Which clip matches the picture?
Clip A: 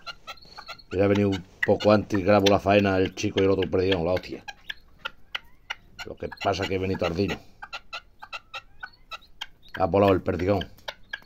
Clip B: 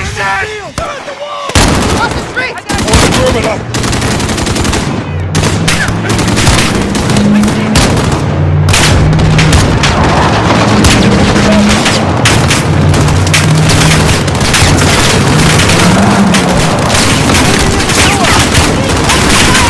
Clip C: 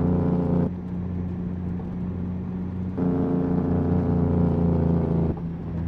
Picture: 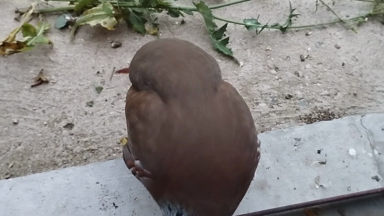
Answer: A